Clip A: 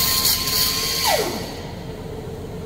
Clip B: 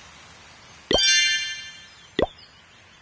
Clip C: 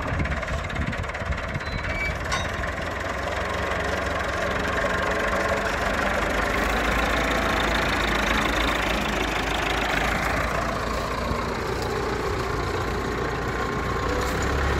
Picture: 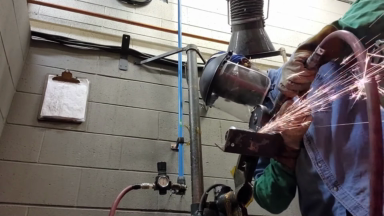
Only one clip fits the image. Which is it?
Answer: A